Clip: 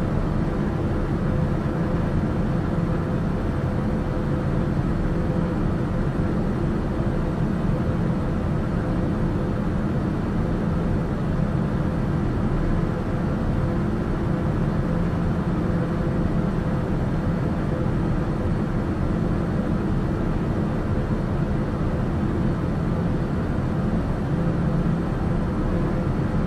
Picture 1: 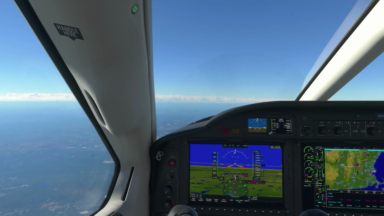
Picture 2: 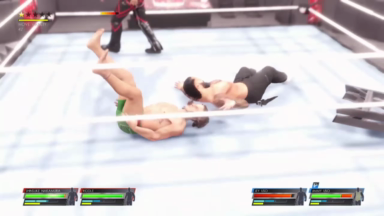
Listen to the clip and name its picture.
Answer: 1